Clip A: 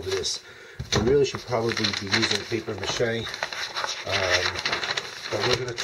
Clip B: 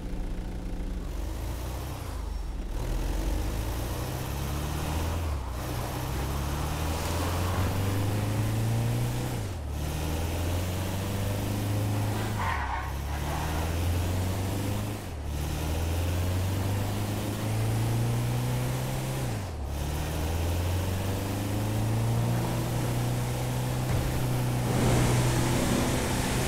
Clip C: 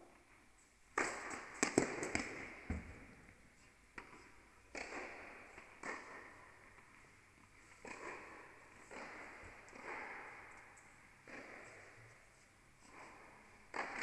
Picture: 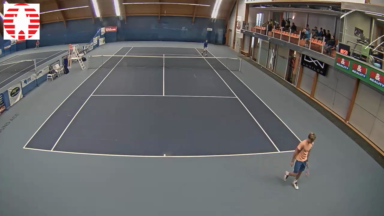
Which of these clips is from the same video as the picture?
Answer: C